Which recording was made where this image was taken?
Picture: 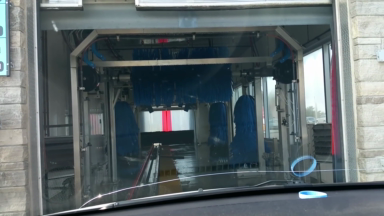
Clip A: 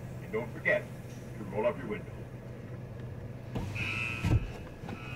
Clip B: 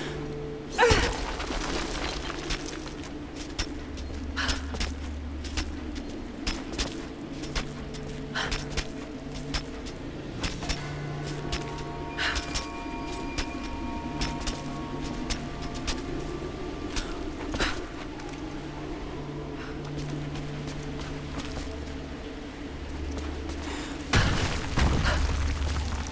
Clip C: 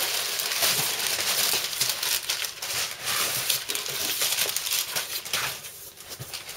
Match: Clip A